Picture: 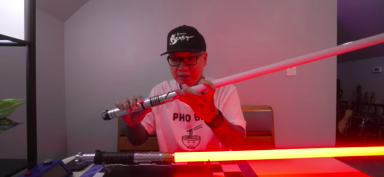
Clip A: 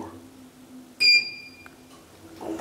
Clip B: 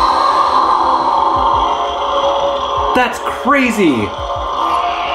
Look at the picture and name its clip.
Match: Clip B